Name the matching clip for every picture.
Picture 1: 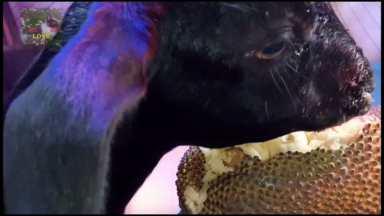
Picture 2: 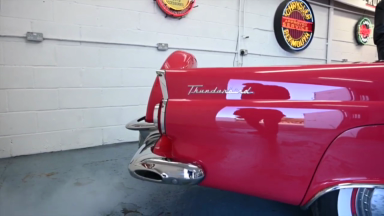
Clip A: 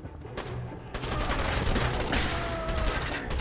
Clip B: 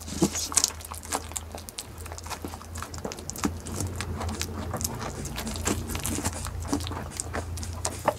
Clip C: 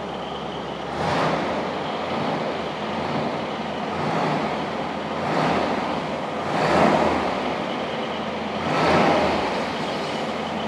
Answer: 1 B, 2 C